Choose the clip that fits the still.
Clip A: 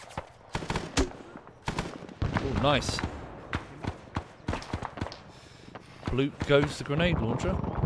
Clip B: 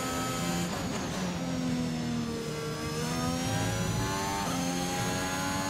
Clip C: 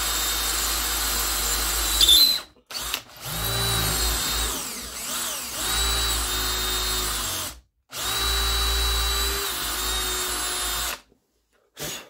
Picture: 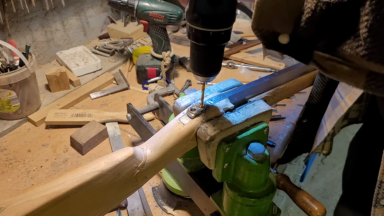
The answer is C